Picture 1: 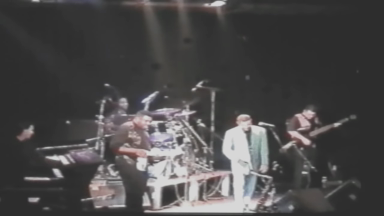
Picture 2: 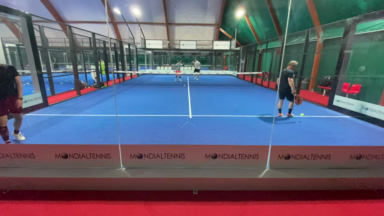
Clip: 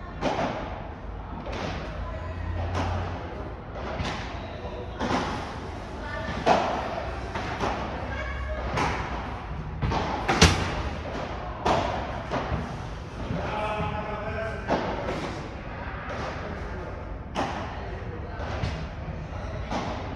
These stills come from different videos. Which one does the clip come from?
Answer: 2